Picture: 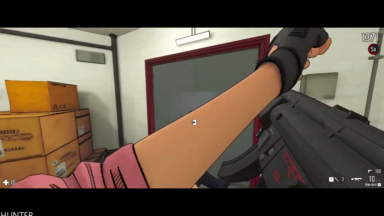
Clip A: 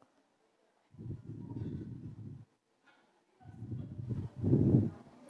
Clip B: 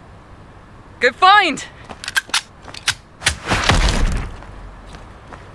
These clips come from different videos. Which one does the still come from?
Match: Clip B